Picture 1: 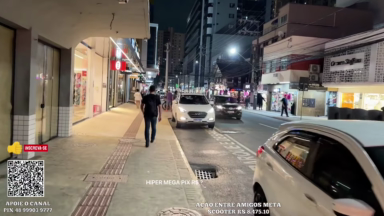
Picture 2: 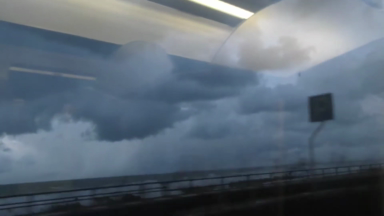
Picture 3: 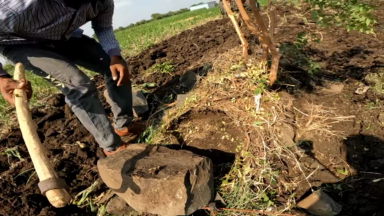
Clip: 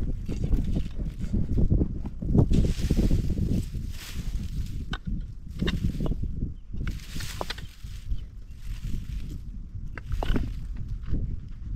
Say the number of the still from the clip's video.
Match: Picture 3